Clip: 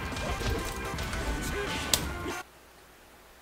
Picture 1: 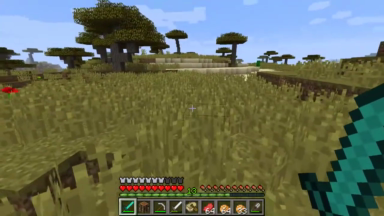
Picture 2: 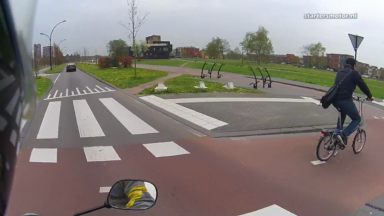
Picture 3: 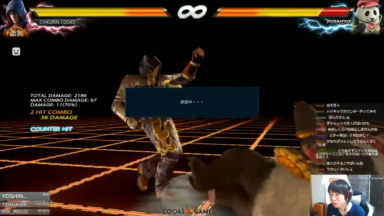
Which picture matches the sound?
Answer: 3